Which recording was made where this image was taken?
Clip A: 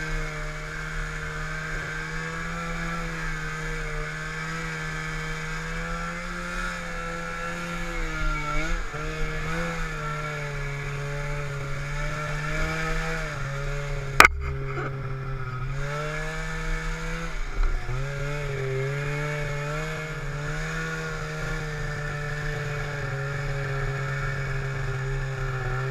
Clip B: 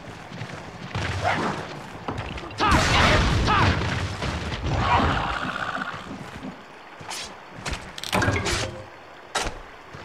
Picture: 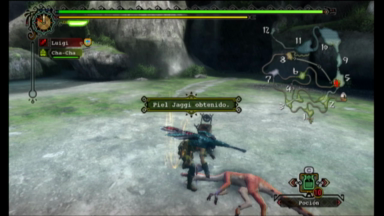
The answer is B